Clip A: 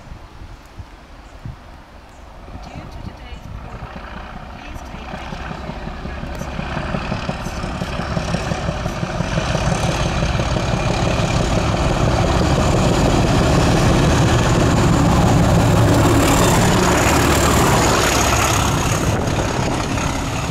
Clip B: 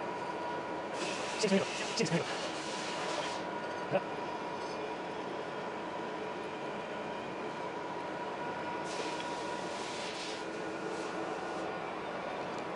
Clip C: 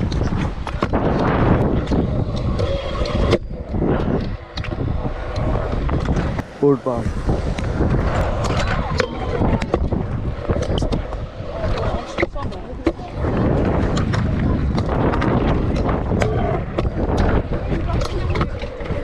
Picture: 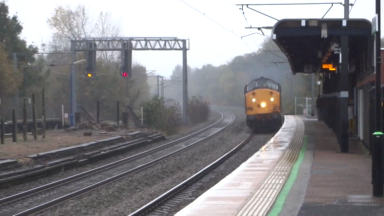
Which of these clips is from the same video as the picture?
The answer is A